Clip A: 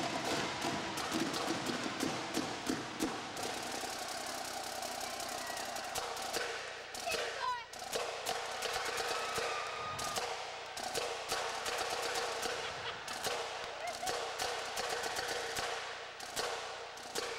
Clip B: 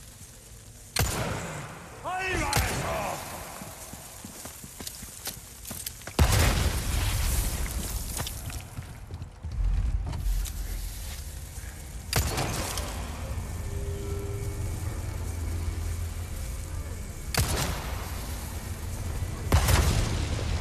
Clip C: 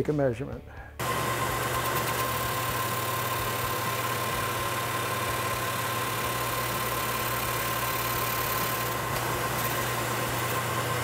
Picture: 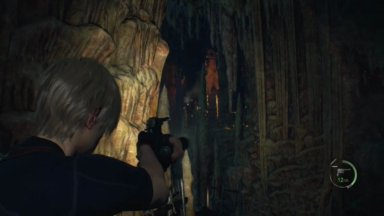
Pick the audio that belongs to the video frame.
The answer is B